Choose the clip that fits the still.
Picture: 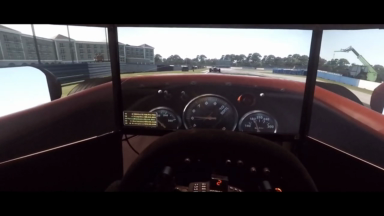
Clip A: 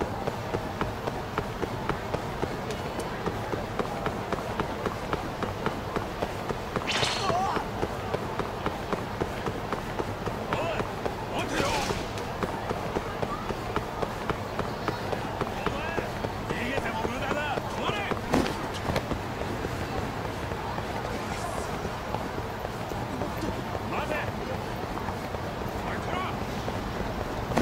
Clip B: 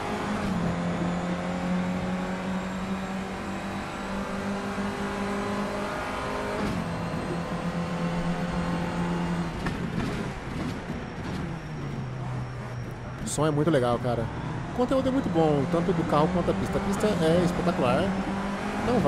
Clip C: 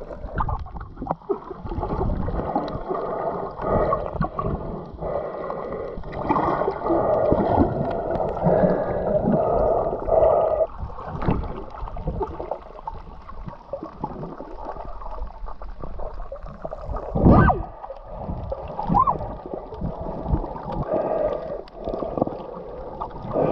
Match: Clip B